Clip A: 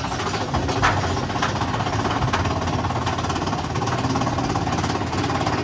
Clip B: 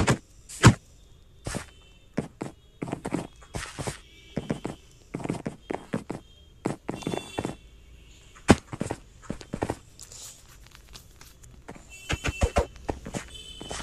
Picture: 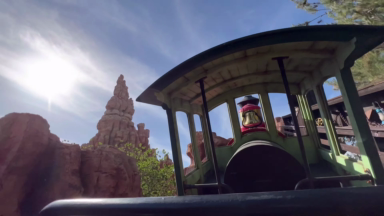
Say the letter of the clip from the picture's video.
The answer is A